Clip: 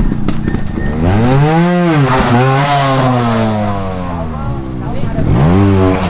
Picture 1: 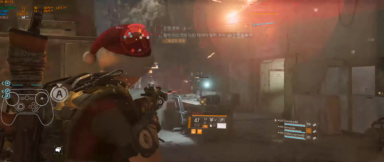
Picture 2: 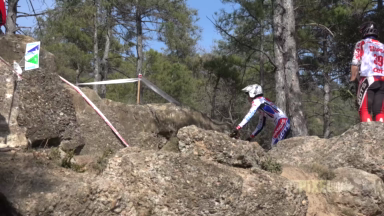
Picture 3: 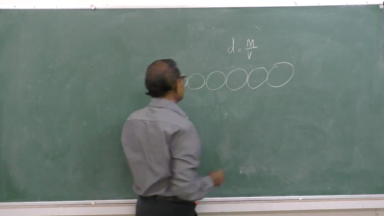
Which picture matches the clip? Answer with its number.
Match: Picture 2